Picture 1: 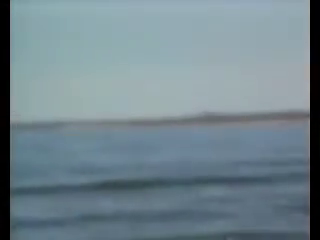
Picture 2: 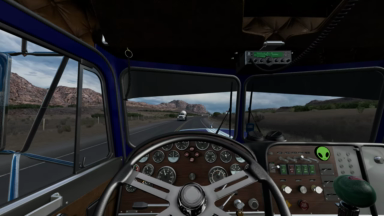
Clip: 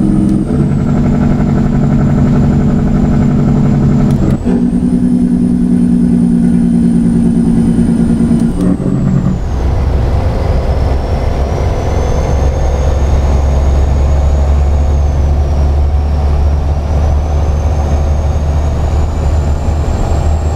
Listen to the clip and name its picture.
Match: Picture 2